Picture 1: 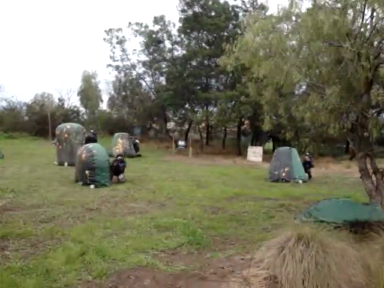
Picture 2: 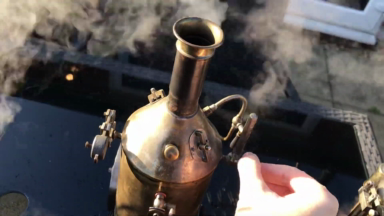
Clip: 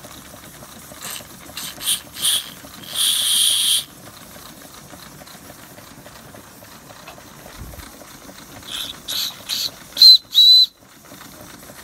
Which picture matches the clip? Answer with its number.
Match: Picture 2